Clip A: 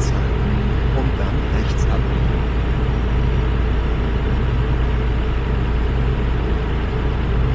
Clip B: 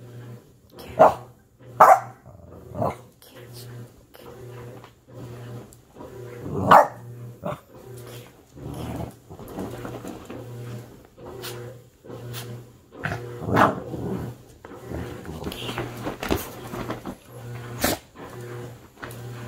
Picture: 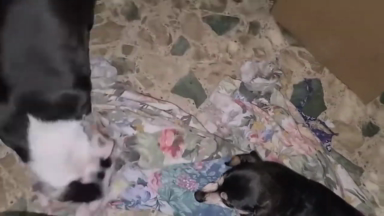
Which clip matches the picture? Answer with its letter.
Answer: B